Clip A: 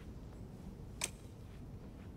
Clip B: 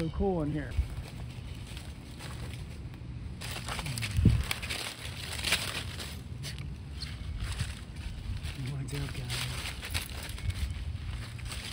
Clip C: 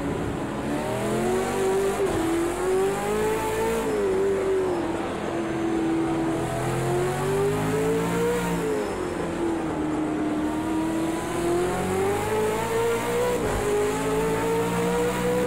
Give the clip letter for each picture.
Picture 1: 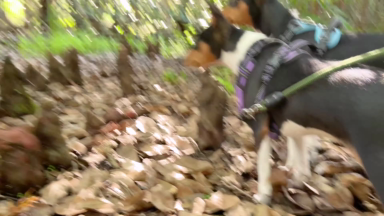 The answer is B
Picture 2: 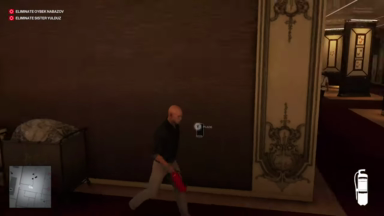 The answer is A